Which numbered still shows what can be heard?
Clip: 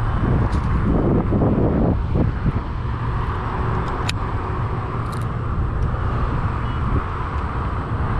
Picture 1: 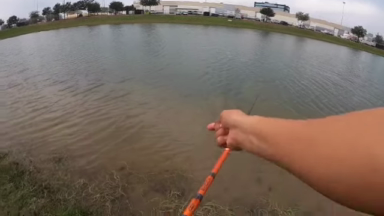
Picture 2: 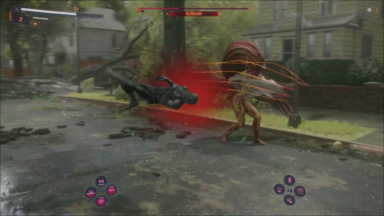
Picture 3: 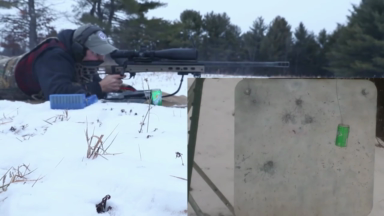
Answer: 1